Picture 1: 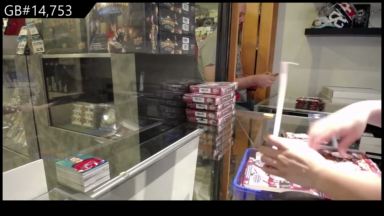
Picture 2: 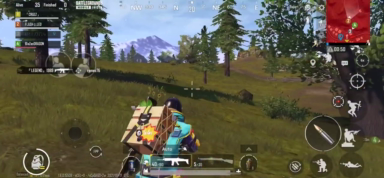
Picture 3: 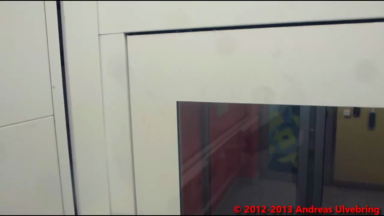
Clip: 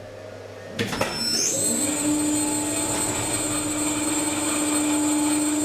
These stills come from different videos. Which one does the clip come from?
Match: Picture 3